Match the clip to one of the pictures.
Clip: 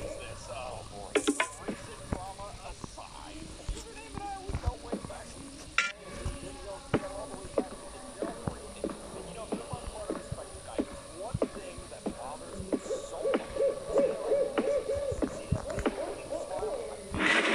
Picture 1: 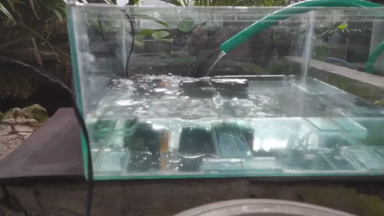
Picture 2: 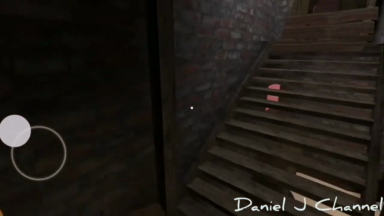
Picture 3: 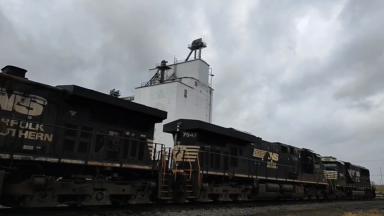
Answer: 2